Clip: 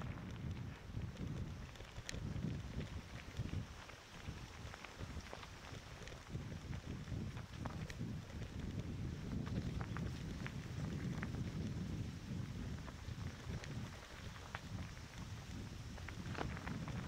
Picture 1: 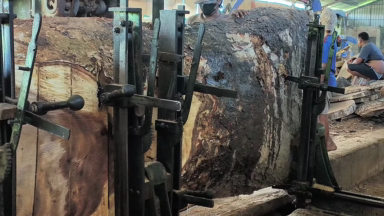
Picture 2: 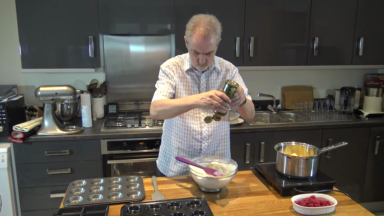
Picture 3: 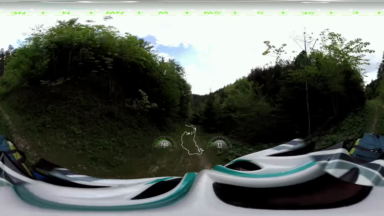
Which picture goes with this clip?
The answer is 3